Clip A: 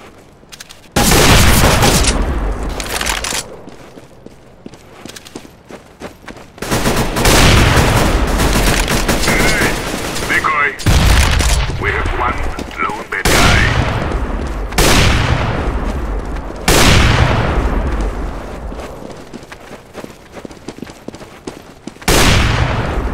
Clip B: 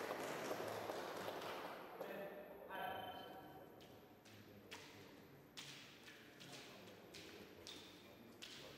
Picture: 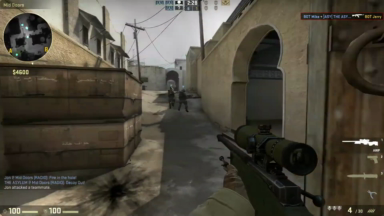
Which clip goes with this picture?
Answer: A